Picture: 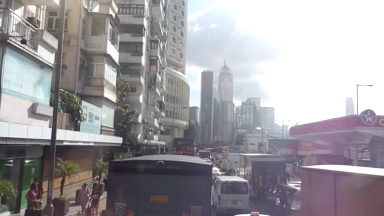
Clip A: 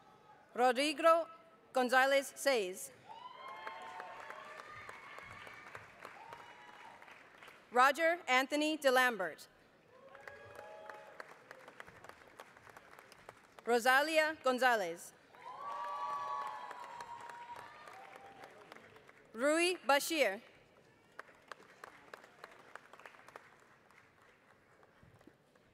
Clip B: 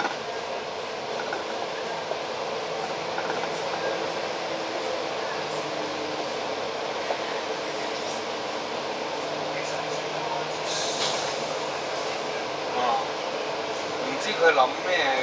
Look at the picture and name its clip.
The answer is B